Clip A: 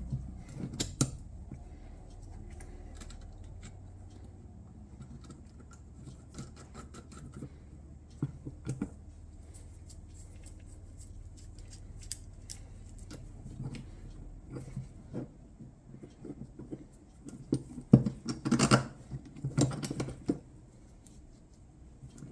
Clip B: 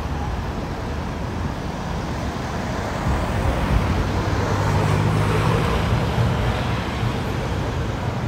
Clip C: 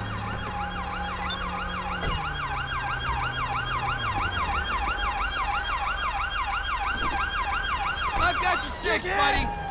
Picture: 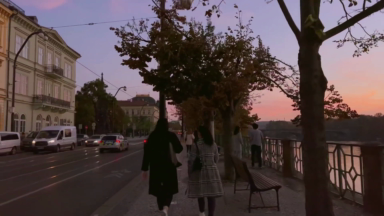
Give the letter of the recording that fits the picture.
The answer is B